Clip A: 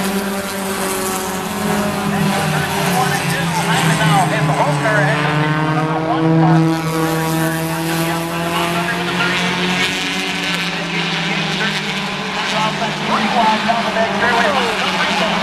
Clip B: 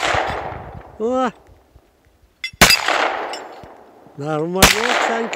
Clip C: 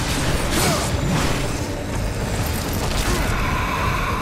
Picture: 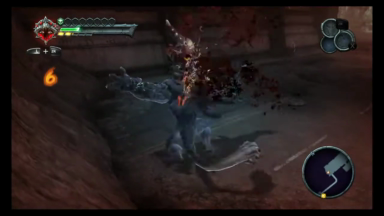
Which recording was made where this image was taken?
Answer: C